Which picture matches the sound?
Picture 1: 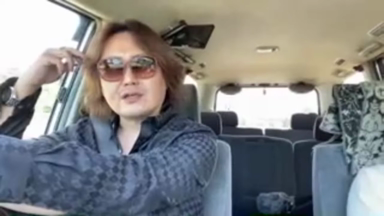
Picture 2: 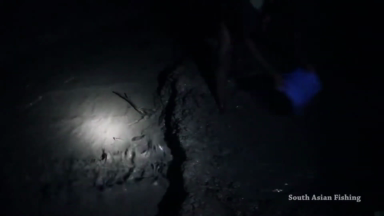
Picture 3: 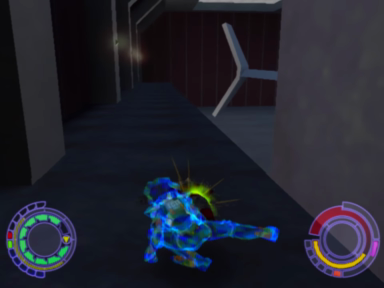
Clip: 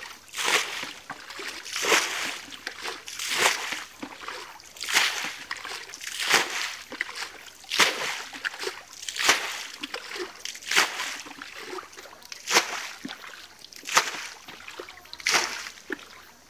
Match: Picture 2